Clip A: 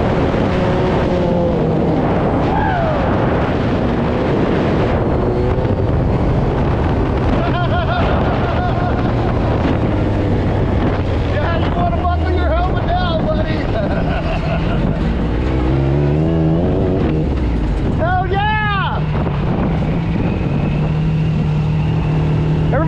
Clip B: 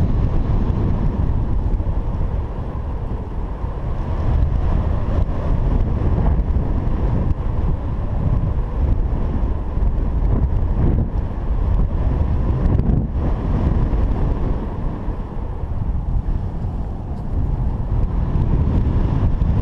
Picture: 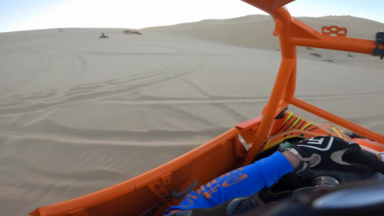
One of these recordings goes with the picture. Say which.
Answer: A